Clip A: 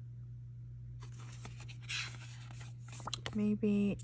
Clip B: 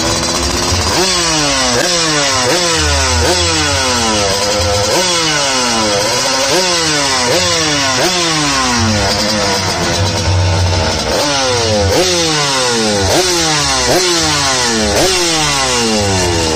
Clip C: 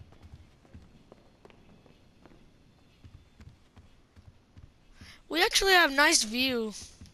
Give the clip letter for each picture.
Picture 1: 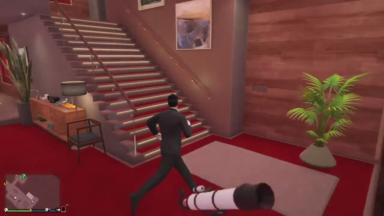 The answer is C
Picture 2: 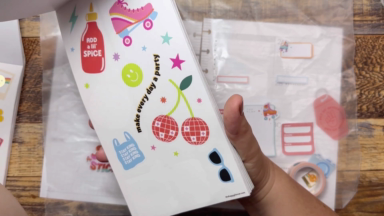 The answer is A